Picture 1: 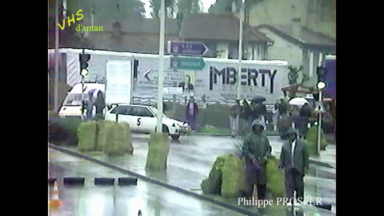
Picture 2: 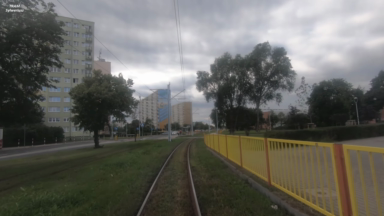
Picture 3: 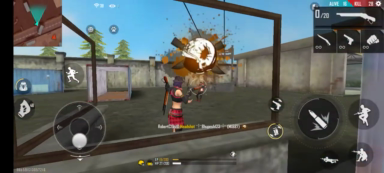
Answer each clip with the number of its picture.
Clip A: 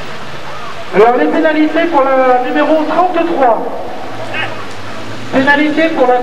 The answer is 1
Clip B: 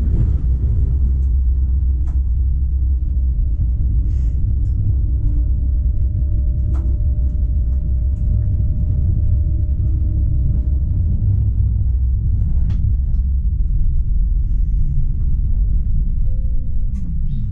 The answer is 2